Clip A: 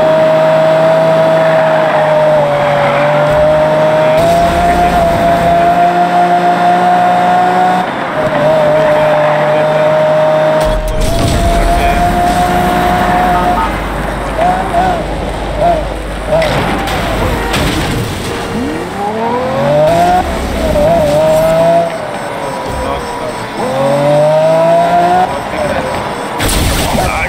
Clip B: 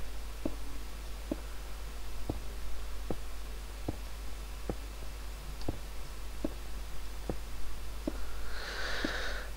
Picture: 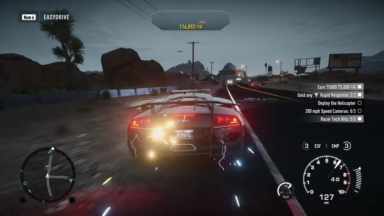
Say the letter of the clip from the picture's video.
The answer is A